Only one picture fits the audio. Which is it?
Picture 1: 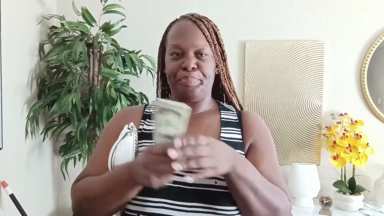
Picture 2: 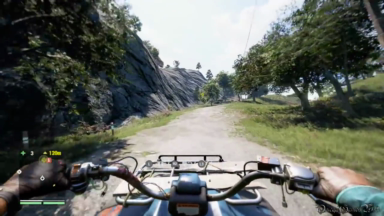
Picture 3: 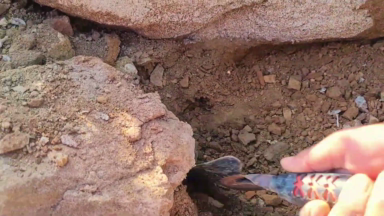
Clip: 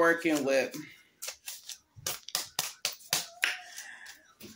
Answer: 1